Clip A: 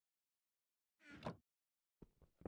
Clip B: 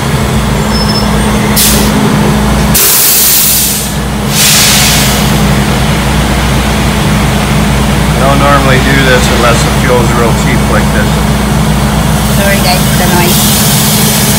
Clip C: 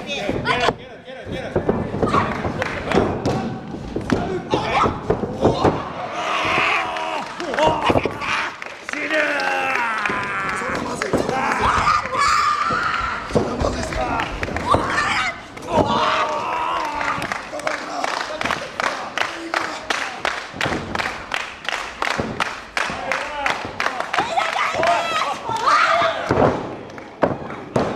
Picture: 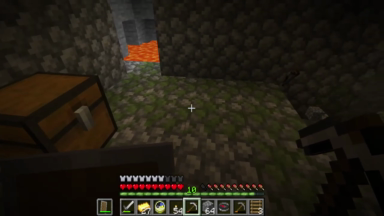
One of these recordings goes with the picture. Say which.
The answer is A